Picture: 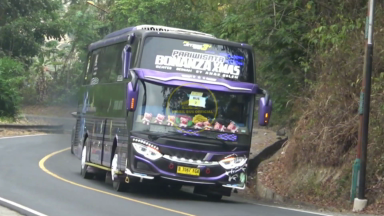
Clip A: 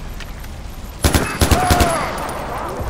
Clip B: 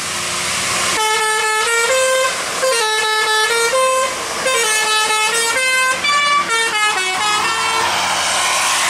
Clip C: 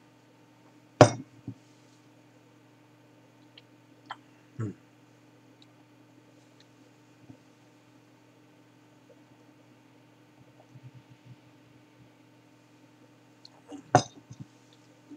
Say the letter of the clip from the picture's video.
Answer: B